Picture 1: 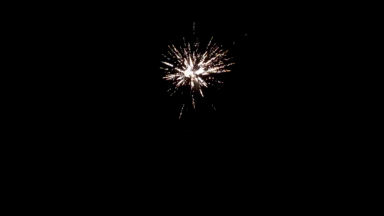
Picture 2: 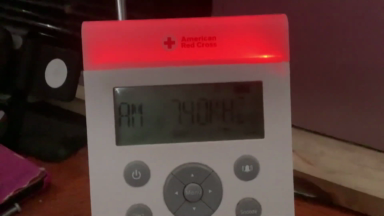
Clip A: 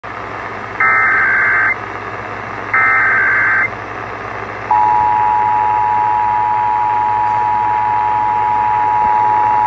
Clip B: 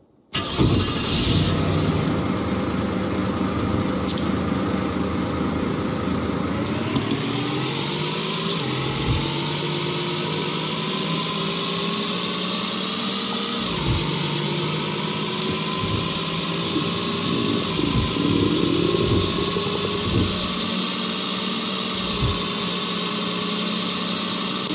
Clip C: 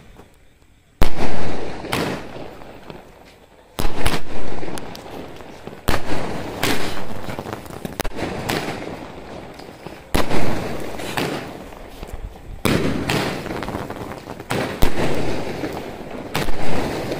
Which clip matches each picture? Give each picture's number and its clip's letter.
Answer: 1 C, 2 A